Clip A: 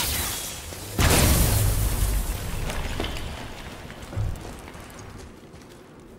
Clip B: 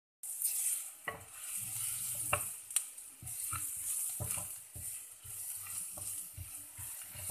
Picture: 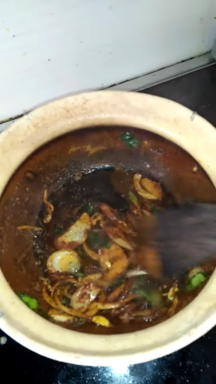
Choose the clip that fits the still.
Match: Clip B